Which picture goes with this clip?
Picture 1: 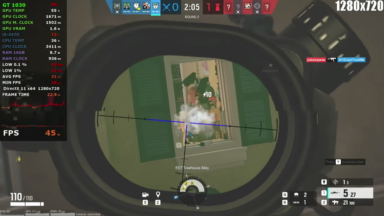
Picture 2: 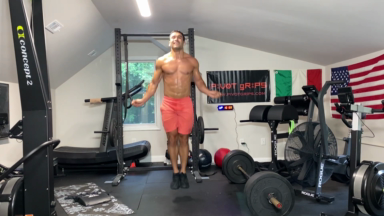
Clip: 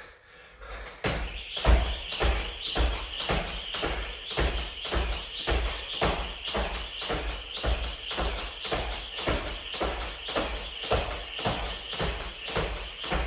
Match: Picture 2